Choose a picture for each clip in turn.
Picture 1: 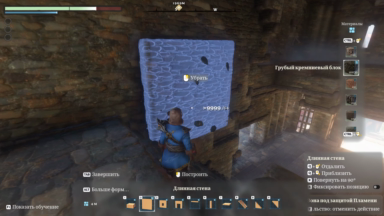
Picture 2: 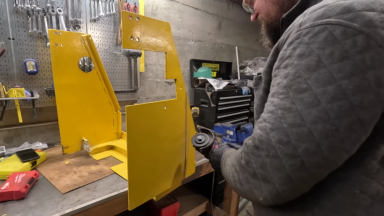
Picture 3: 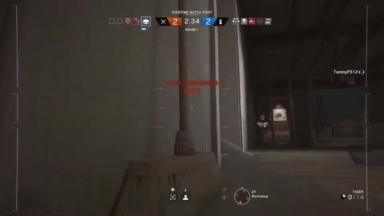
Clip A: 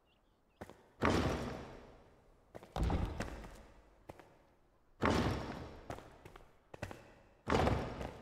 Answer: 1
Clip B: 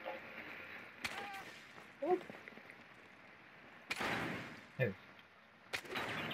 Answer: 3